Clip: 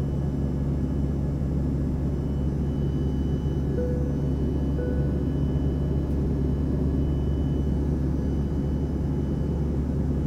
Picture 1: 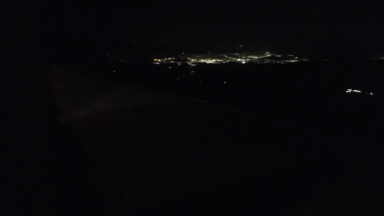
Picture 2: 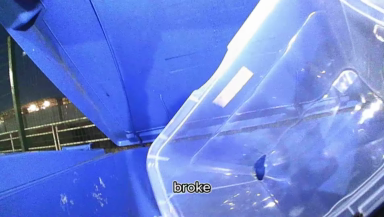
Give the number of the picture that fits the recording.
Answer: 1